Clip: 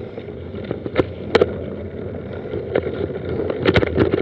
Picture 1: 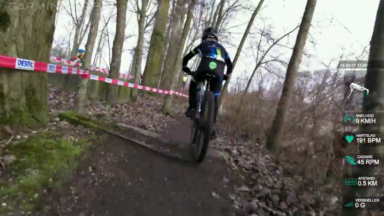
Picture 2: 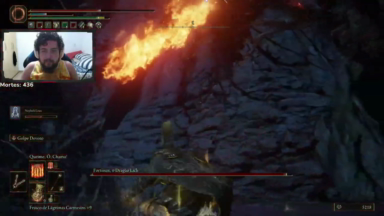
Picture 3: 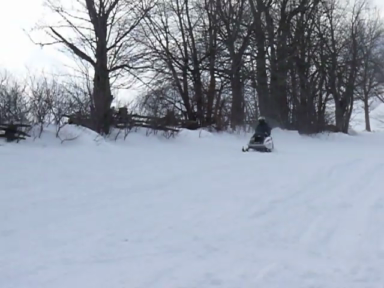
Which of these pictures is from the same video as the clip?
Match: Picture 1